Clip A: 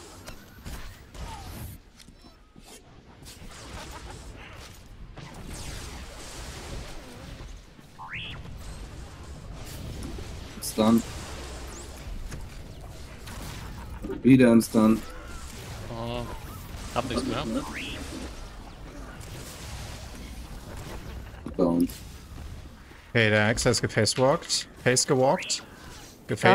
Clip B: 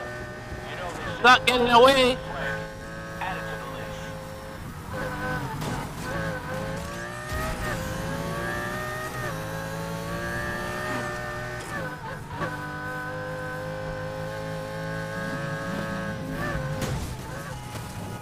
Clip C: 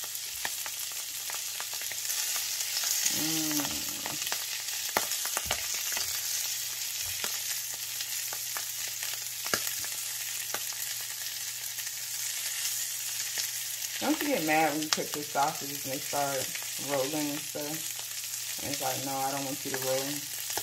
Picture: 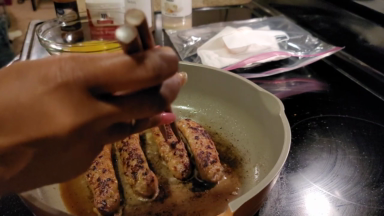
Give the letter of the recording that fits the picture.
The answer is C